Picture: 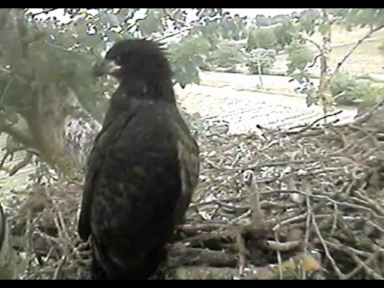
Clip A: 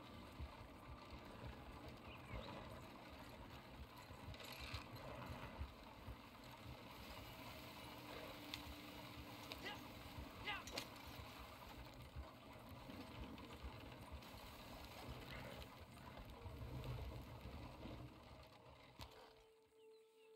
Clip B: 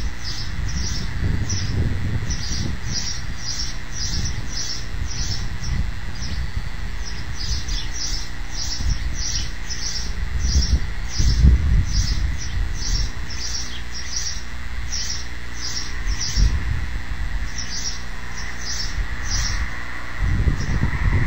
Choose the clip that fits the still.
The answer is B